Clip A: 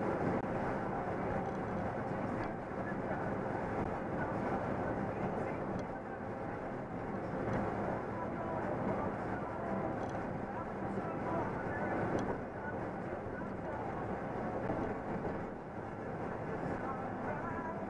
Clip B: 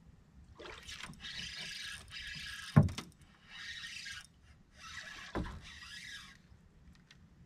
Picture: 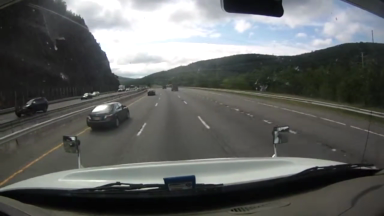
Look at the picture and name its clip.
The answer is A